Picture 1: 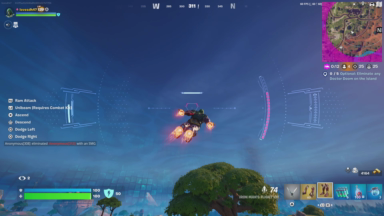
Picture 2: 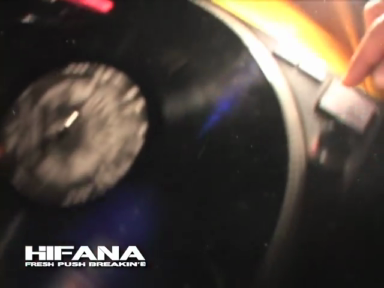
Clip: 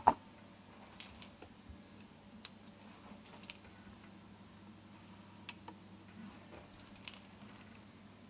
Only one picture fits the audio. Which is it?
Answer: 2